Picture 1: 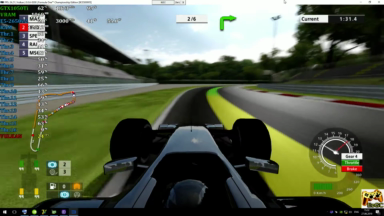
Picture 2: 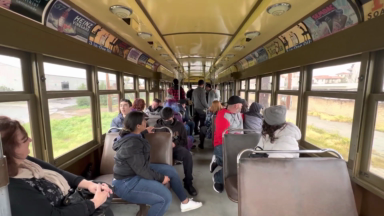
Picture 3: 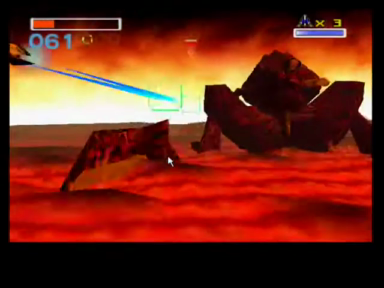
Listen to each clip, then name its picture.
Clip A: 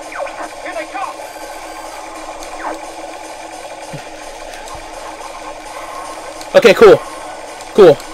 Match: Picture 3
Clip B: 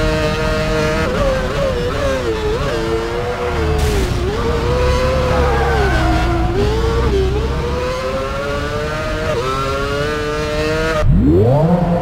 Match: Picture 1